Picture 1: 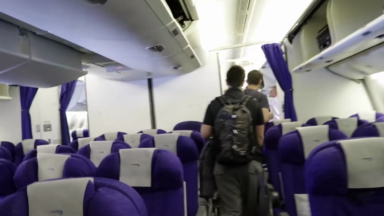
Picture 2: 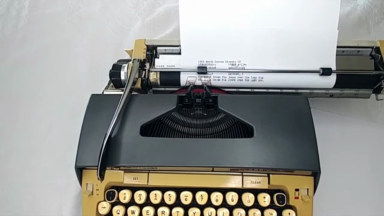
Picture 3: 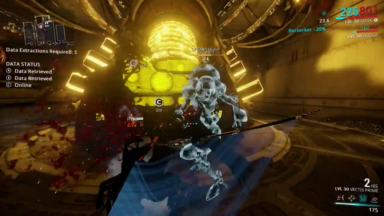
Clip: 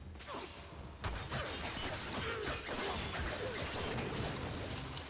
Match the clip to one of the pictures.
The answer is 3